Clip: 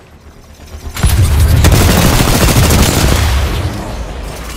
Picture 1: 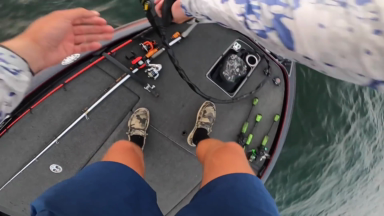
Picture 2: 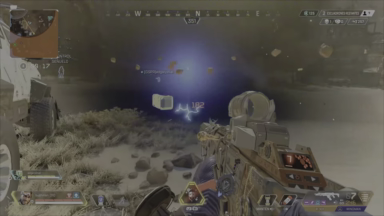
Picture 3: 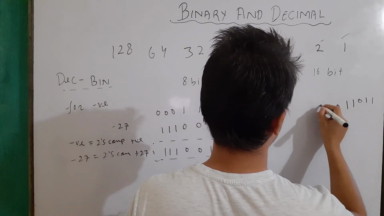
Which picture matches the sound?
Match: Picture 2